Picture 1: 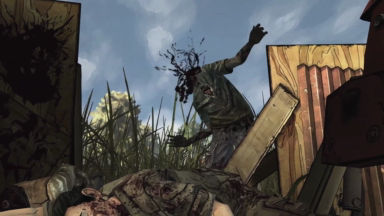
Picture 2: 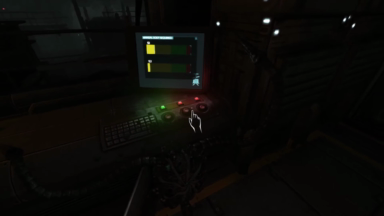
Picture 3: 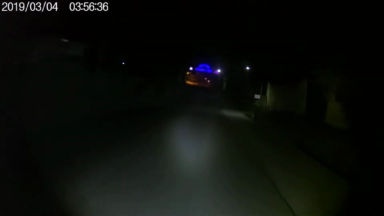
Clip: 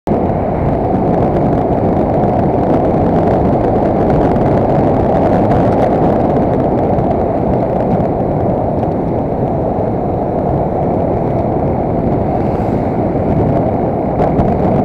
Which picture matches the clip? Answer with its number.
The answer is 3